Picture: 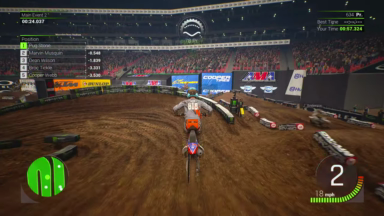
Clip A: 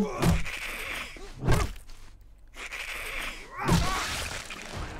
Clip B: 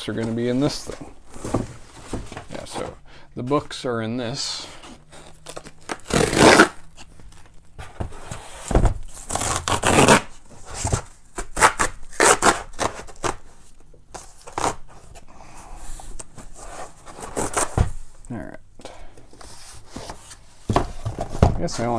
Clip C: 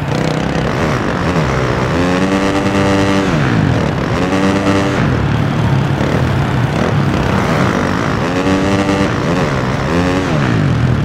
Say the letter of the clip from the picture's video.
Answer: C